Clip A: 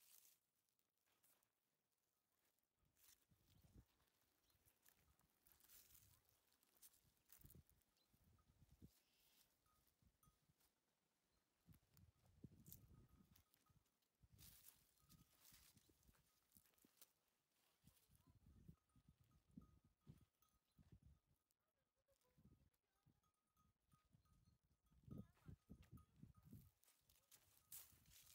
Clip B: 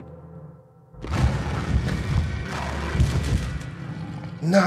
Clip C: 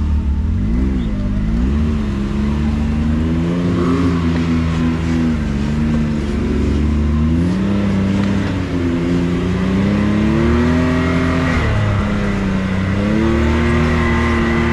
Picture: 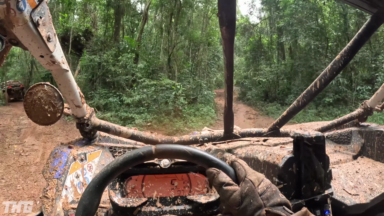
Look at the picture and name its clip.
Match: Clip C